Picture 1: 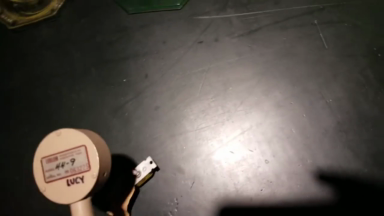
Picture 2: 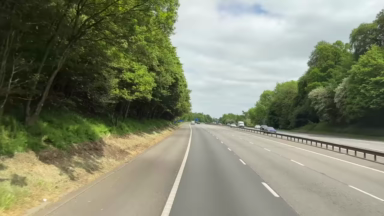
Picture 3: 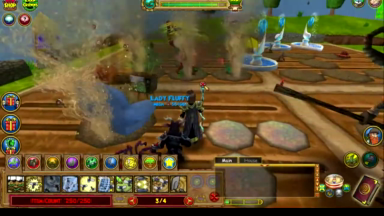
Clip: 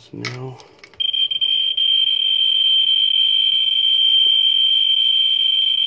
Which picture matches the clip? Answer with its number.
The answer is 1